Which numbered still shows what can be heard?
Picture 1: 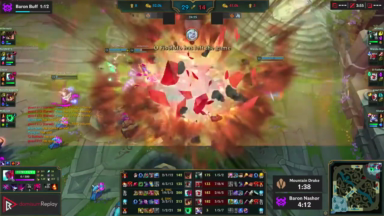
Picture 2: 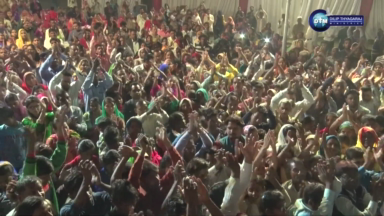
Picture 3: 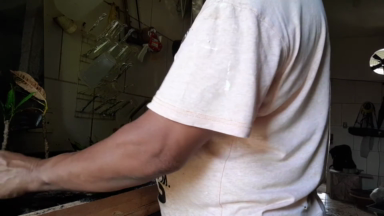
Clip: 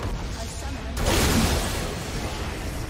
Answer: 1